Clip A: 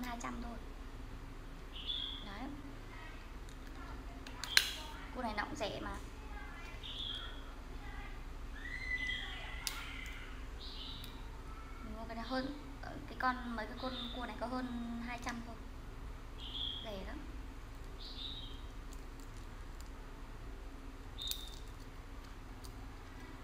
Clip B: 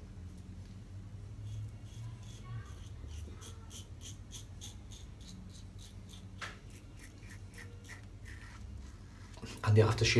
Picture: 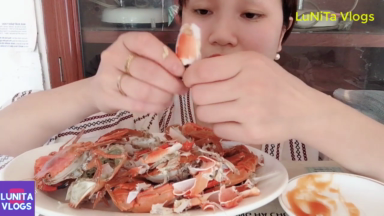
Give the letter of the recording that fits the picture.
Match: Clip A